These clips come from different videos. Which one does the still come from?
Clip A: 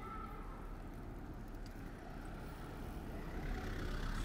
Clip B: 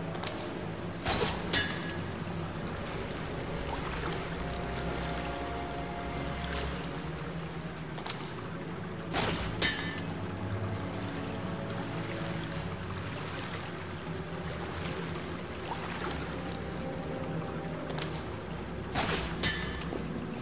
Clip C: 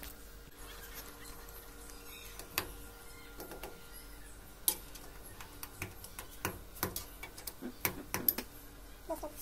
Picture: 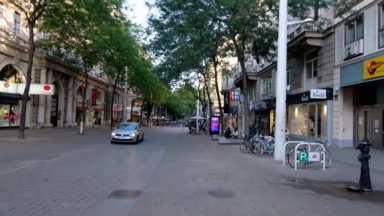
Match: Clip A